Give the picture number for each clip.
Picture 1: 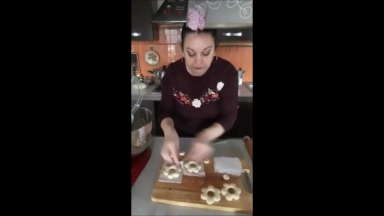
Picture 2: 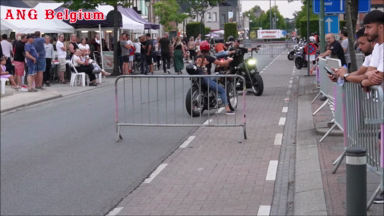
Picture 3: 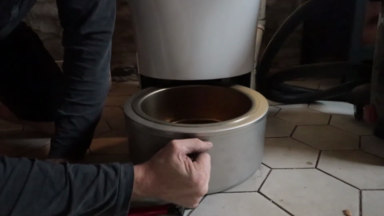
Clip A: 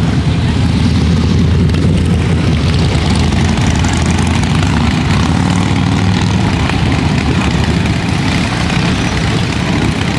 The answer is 2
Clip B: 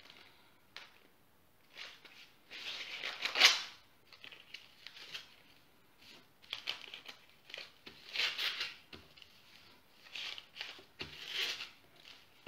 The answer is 1